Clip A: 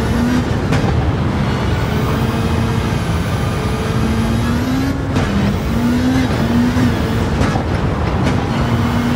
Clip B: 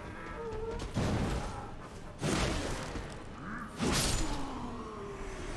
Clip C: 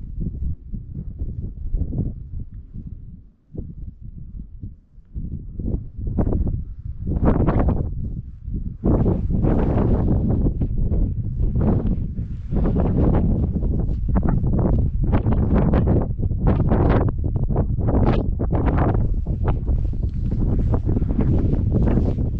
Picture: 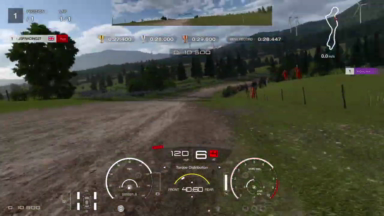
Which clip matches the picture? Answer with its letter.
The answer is A